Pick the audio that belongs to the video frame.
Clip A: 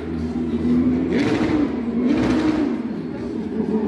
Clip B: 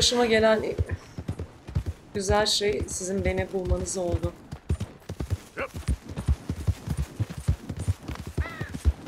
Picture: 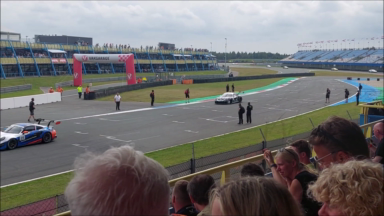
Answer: A